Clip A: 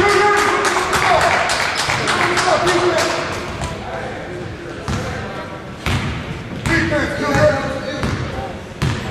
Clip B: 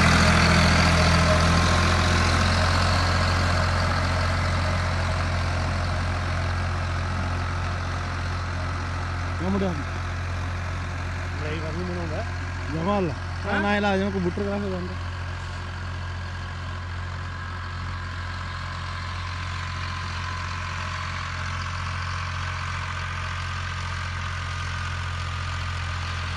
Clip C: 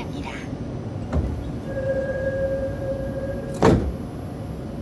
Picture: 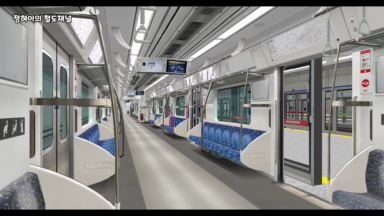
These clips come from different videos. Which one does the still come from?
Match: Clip C